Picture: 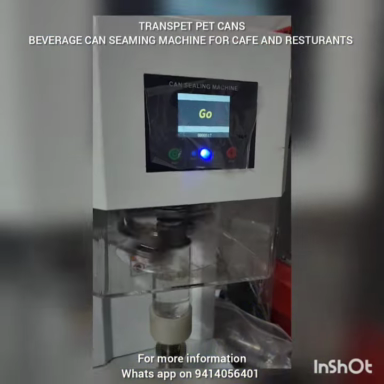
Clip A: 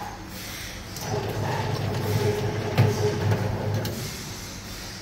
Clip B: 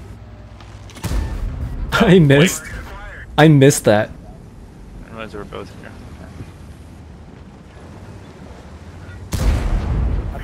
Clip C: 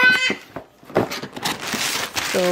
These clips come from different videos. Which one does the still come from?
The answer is A